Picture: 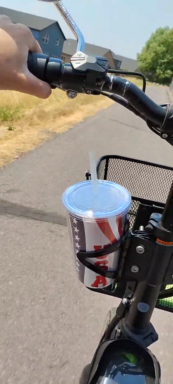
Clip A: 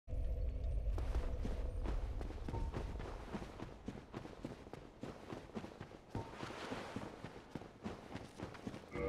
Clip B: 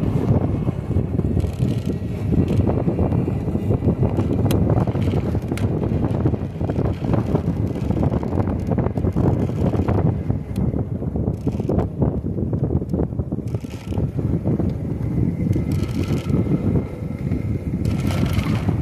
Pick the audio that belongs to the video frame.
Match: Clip B